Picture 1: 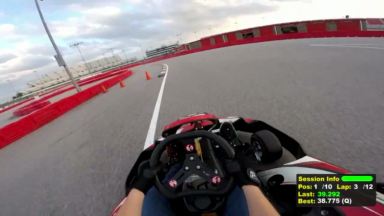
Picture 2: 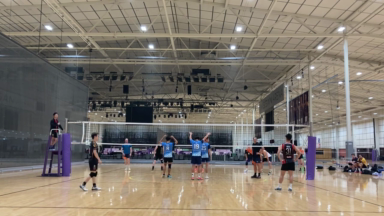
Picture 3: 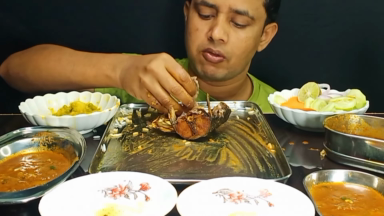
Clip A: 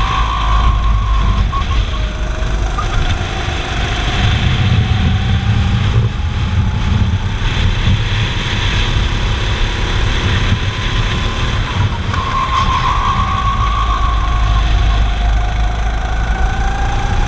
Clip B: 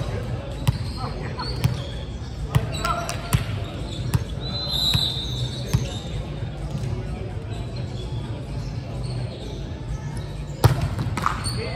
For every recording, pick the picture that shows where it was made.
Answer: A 1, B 2